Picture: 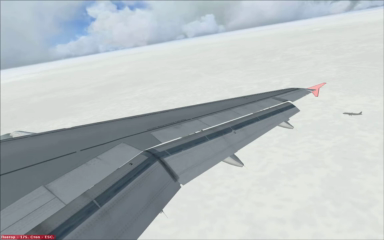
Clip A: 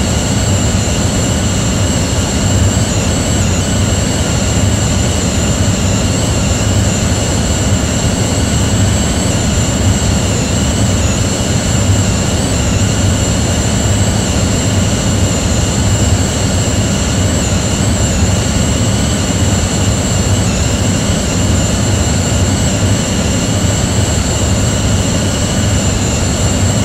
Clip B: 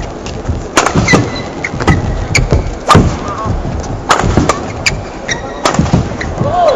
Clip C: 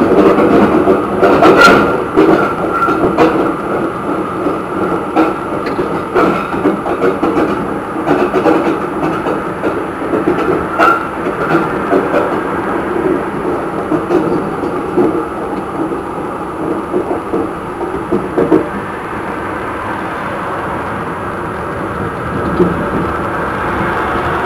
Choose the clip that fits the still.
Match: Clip A